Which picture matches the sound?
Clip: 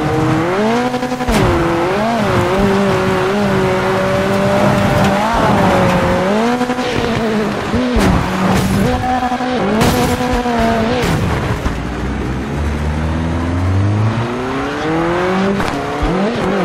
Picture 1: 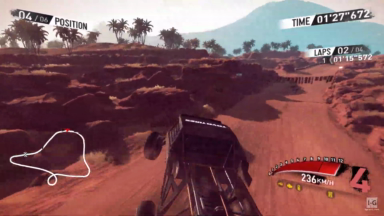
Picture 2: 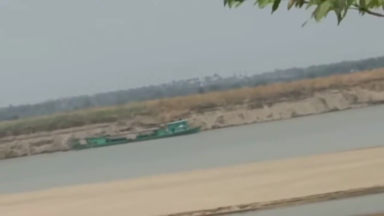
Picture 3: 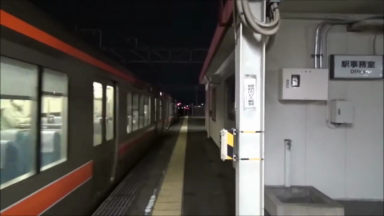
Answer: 1